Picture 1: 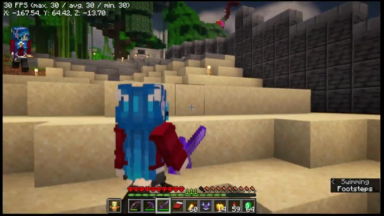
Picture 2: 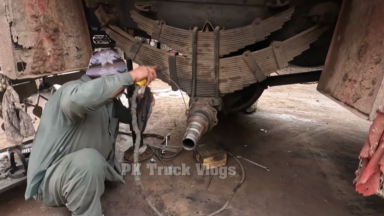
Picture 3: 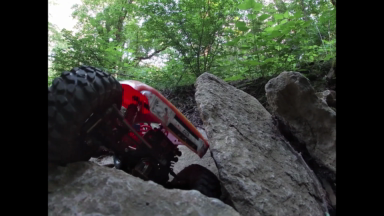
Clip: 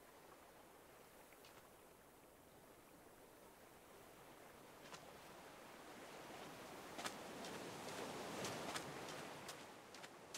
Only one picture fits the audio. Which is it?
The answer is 1